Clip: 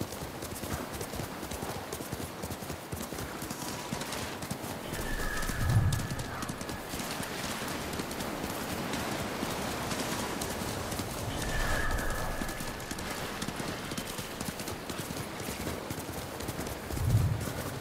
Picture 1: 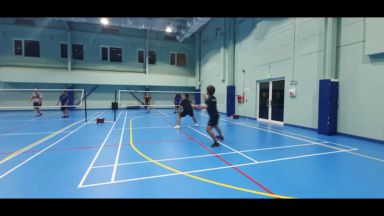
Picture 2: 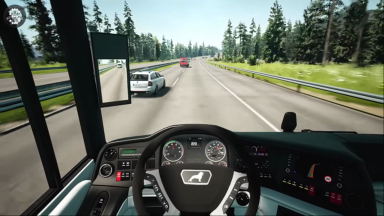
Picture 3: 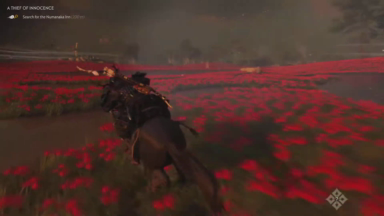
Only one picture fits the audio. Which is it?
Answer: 3